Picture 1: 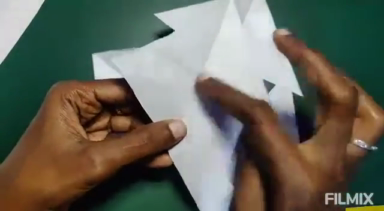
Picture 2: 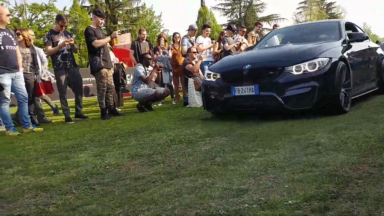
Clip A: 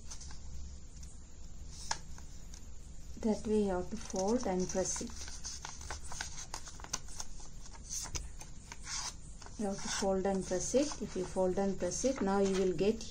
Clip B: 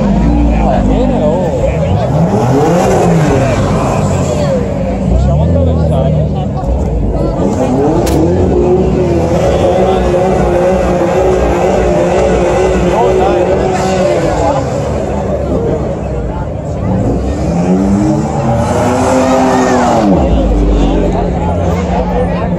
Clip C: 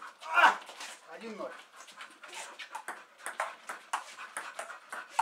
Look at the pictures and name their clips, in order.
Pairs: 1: A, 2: B